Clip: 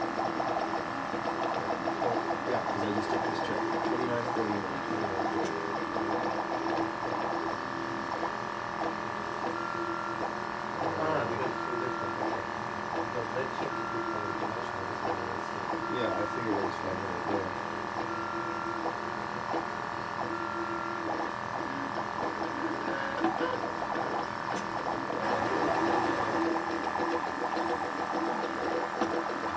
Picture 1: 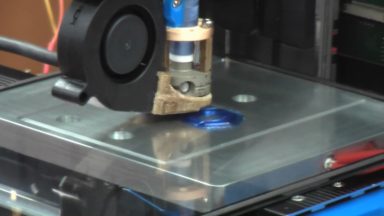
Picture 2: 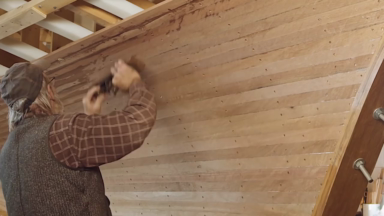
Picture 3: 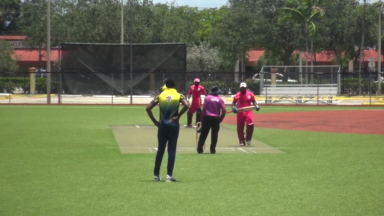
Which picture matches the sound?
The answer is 1